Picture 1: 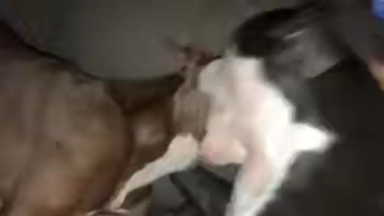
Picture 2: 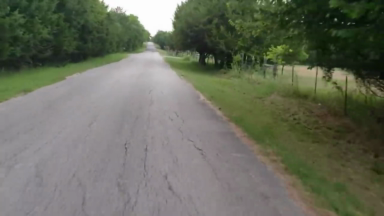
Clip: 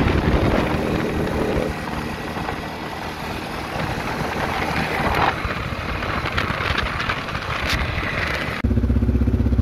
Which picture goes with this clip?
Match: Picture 2